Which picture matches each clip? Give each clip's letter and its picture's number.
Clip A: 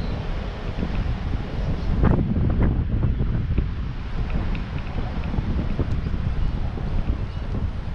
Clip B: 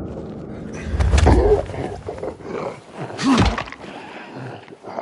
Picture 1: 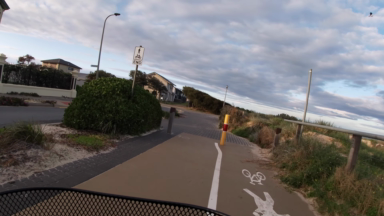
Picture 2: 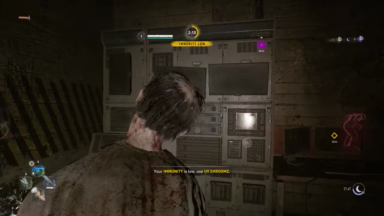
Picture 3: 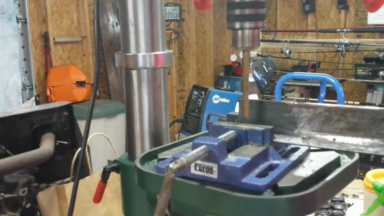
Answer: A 1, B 2